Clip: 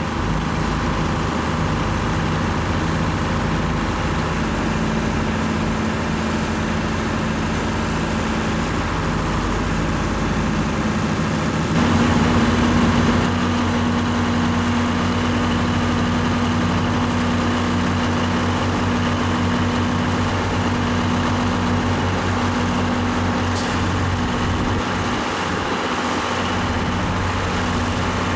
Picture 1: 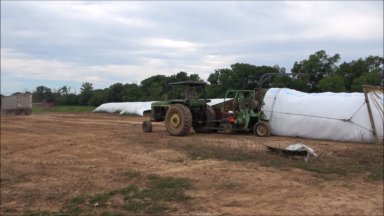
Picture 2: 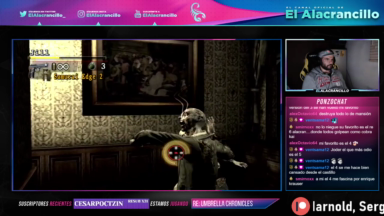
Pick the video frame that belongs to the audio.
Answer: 1